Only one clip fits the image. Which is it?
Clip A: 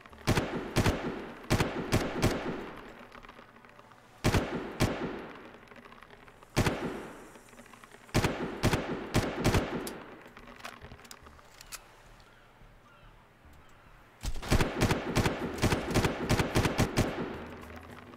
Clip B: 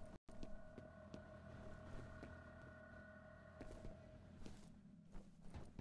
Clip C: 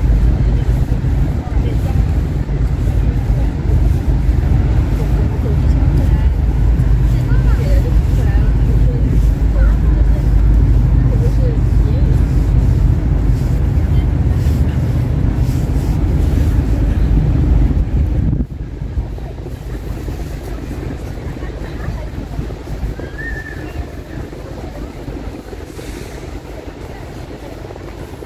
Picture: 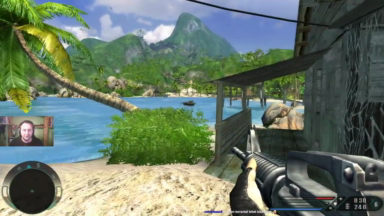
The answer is A